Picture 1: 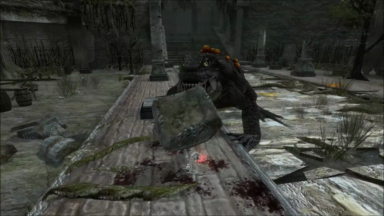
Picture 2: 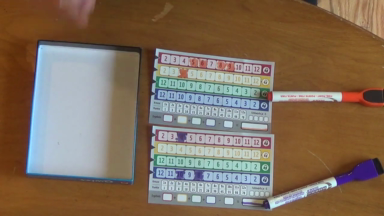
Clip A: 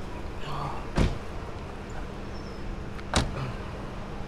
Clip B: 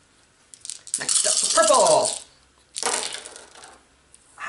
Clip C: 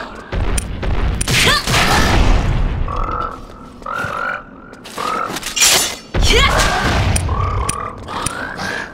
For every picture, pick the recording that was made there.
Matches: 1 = C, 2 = B